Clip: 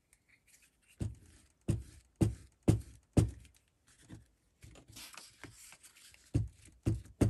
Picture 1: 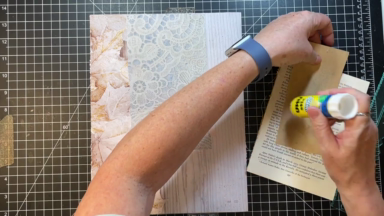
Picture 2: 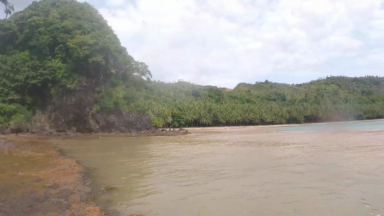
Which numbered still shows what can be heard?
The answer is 1